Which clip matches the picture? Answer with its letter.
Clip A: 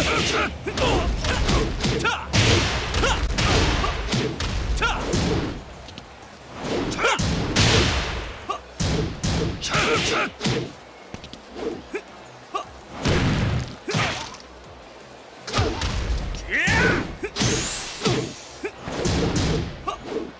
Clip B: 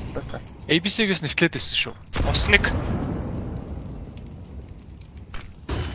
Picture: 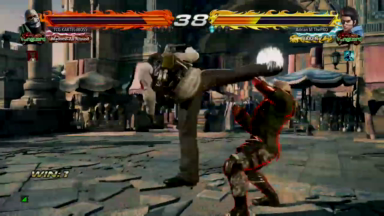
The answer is A